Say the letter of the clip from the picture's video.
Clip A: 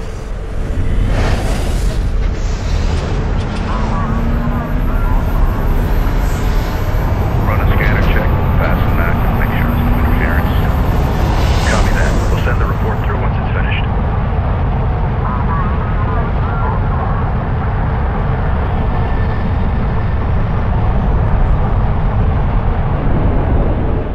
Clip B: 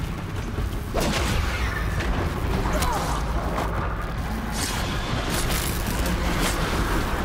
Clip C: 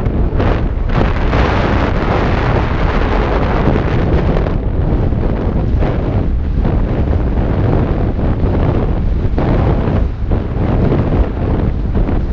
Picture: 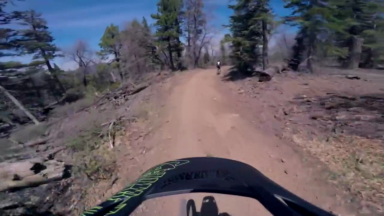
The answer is C